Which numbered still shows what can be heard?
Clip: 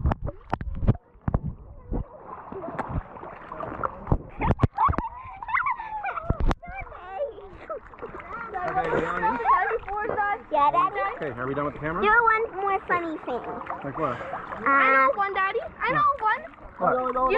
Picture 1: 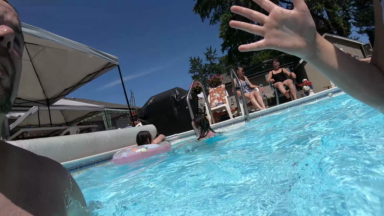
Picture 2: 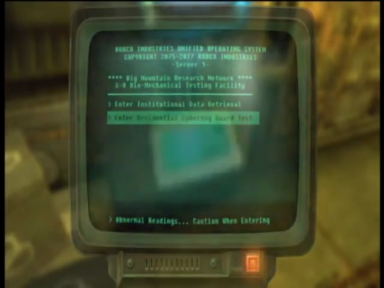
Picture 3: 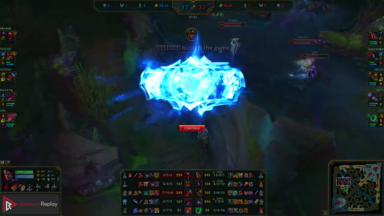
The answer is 1